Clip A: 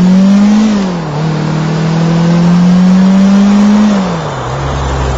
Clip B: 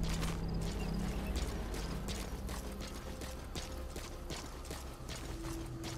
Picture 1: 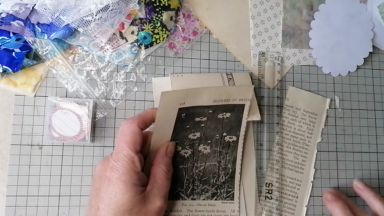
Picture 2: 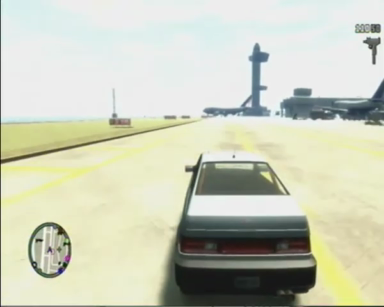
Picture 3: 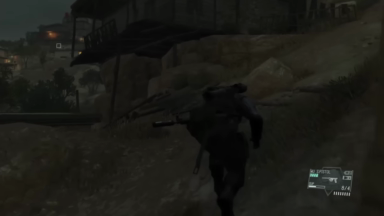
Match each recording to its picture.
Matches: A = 2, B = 3